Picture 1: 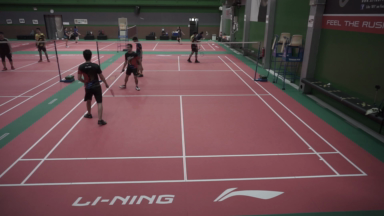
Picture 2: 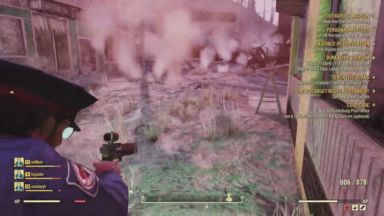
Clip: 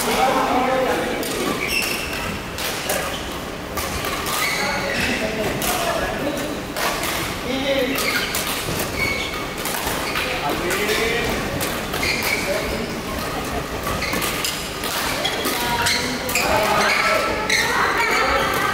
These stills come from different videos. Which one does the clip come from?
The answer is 1